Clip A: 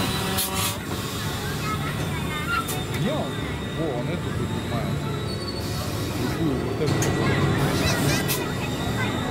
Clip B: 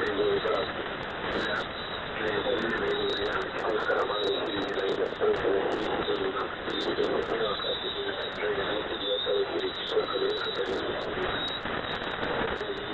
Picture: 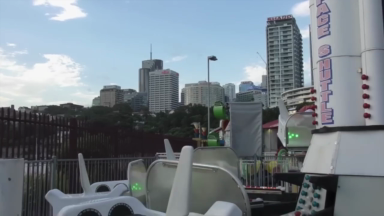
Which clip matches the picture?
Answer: A